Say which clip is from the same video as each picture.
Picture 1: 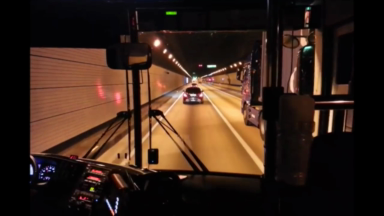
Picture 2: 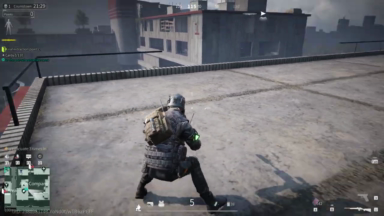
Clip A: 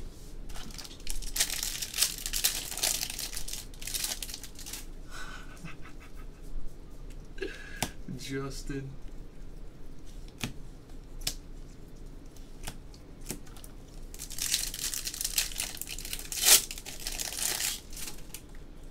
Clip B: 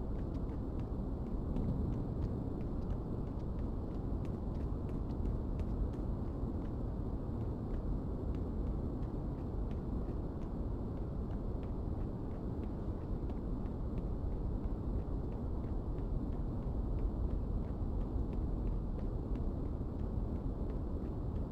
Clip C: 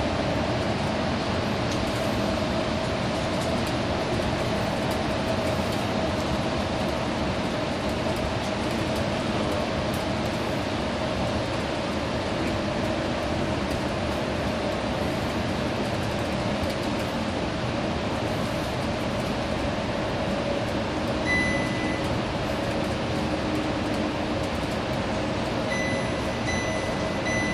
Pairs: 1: C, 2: B